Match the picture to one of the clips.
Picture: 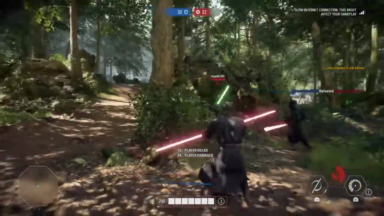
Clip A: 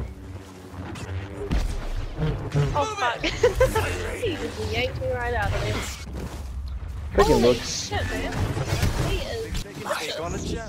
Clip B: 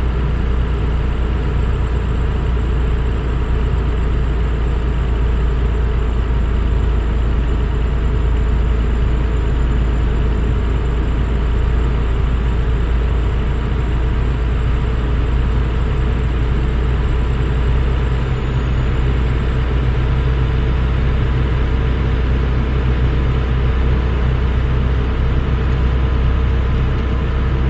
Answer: A